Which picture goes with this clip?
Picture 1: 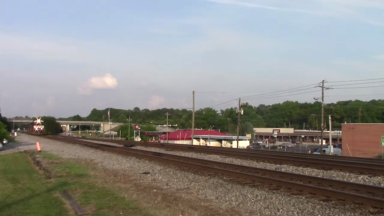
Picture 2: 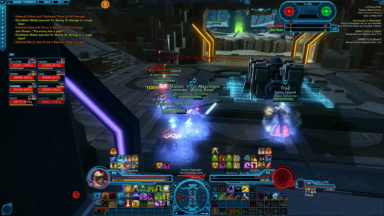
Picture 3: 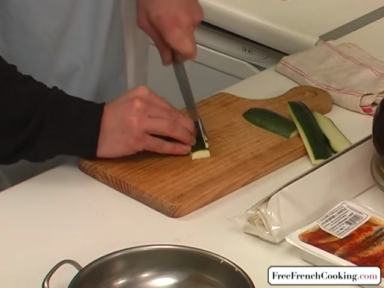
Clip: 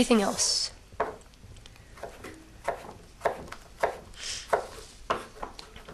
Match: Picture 3